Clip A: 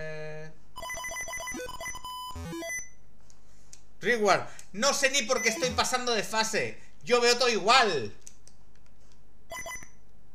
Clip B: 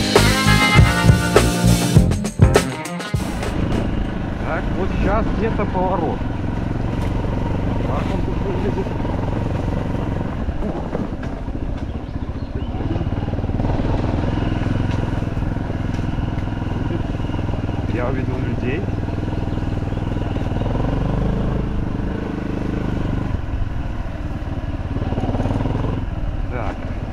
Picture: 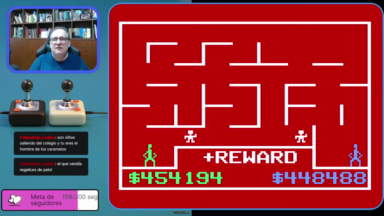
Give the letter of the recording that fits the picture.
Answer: A